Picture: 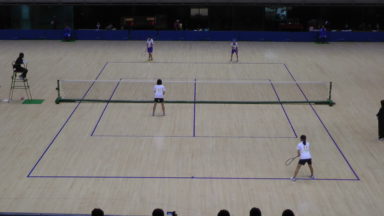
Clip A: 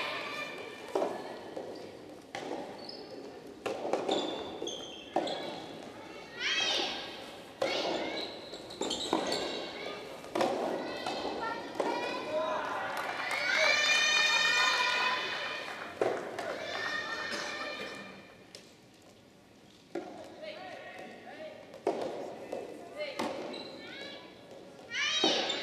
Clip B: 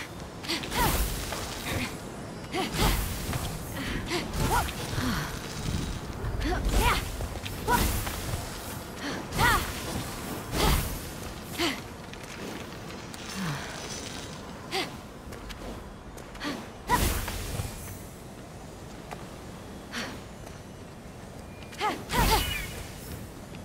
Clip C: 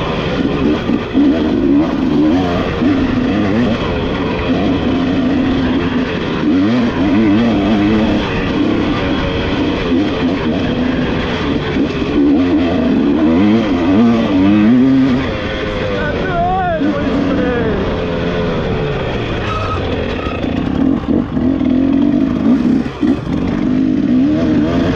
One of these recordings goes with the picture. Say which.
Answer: A